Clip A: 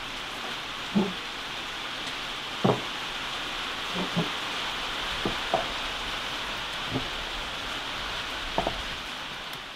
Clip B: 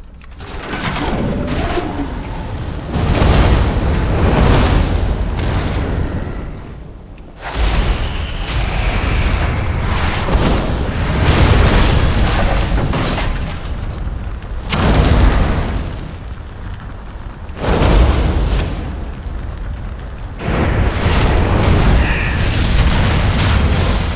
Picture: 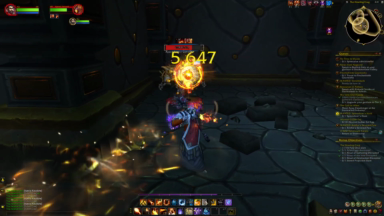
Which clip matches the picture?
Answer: B